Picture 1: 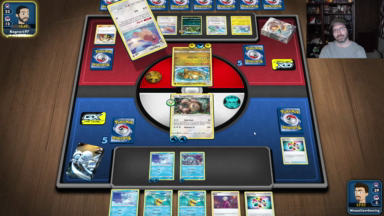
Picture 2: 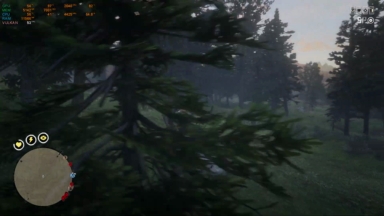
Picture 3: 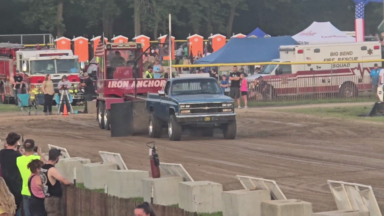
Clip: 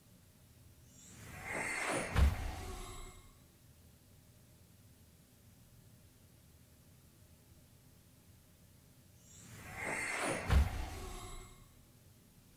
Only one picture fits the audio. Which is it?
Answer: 1